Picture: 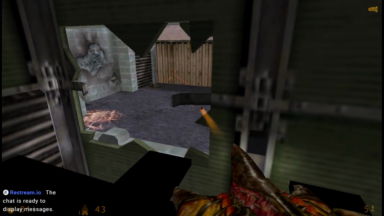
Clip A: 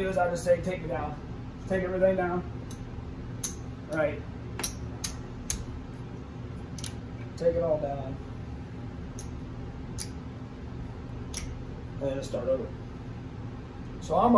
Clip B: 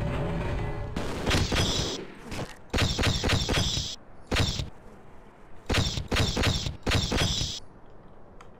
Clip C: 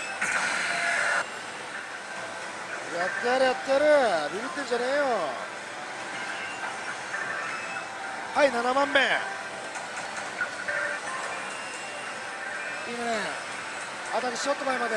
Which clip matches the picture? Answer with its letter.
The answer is B